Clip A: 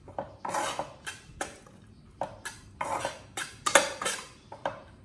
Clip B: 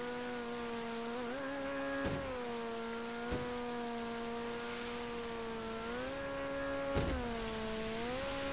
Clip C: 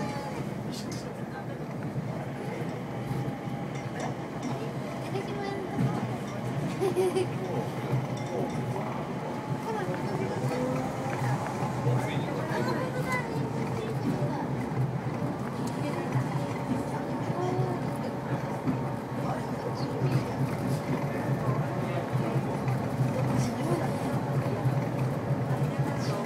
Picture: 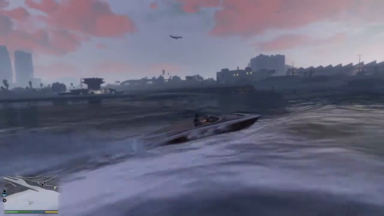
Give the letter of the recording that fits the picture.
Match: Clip B